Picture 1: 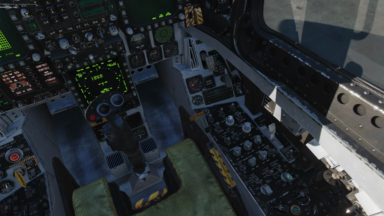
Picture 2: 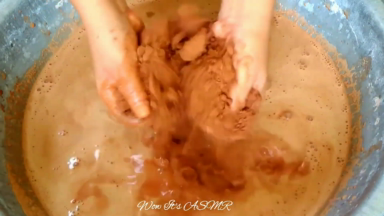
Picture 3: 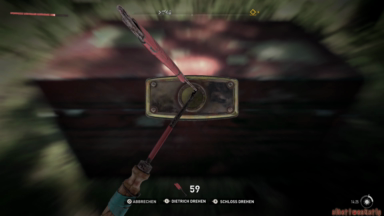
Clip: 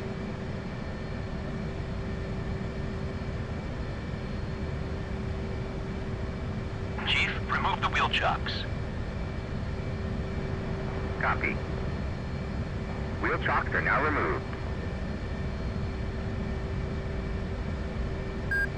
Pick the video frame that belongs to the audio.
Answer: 1